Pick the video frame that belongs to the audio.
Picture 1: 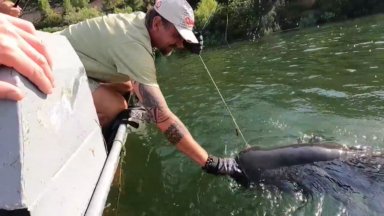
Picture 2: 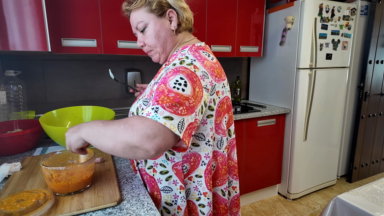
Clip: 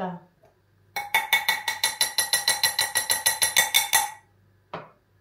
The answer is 2